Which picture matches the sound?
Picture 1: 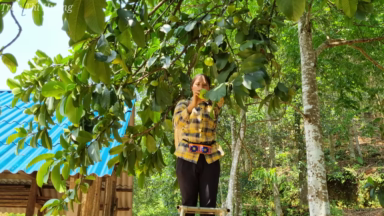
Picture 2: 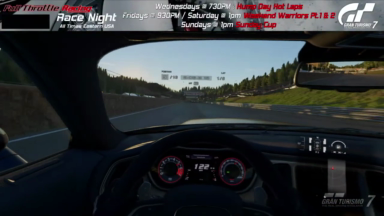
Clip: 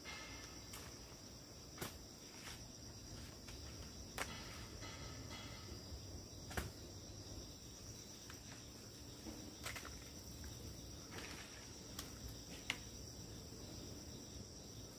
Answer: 1